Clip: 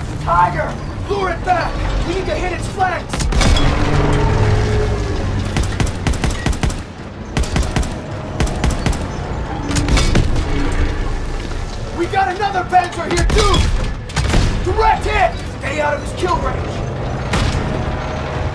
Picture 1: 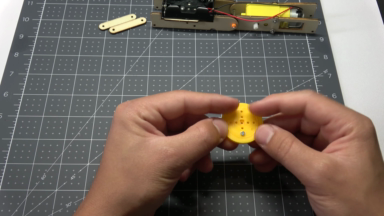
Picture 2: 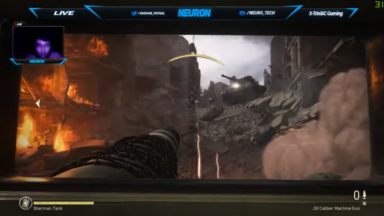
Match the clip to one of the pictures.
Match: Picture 2